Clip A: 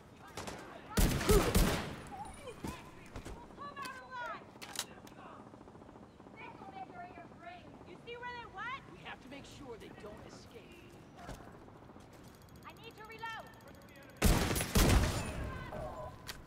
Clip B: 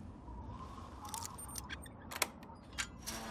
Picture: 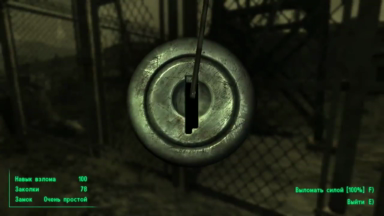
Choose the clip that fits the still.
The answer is B